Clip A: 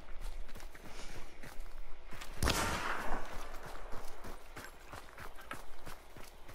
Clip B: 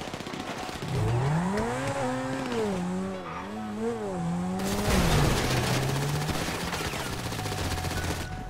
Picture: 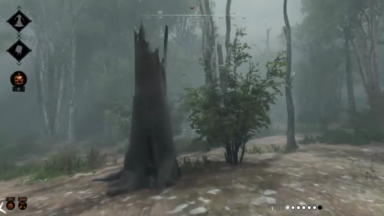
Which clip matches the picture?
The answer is A